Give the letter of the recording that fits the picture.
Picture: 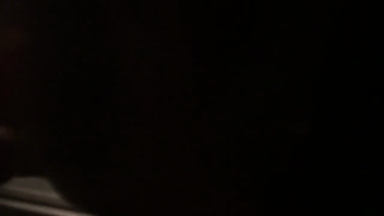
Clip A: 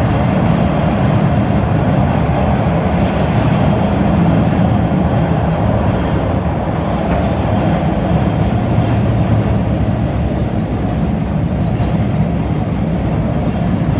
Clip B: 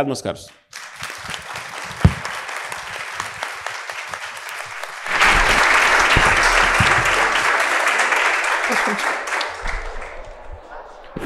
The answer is A